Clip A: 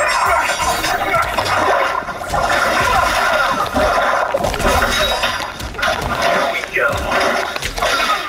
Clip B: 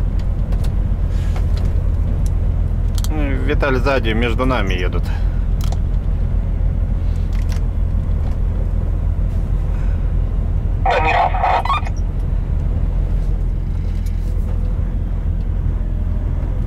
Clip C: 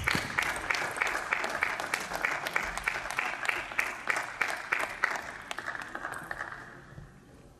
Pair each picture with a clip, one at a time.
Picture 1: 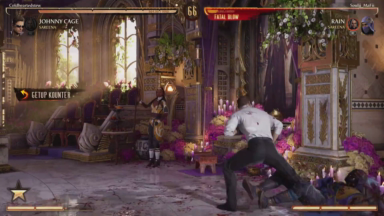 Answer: A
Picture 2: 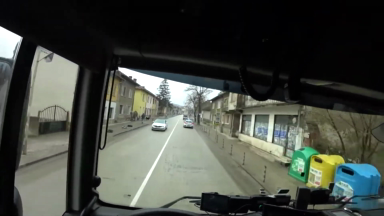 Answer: B